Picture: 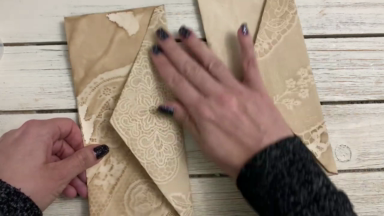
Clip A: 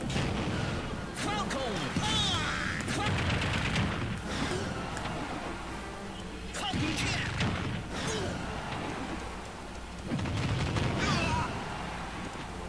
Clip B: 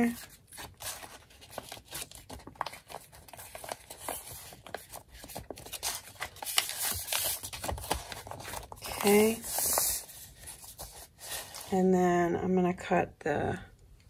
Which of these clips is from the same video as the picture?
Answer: B